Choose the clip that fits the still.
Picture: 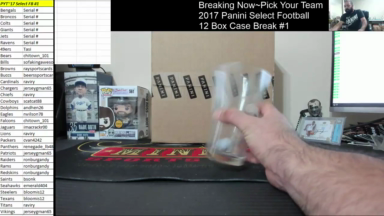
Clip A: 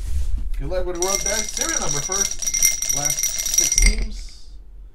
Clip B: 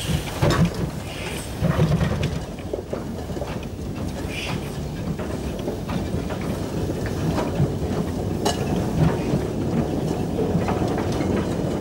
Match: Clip A